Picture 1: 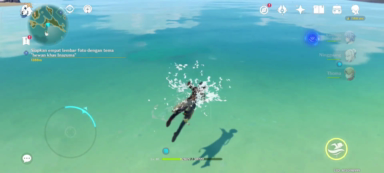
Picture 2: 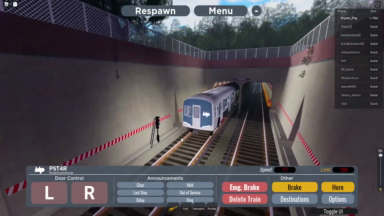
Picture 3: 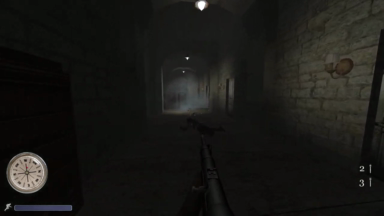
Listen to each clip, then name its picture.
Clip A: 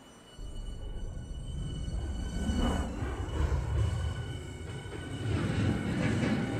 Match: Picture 2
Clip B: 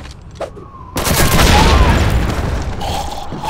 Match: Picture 3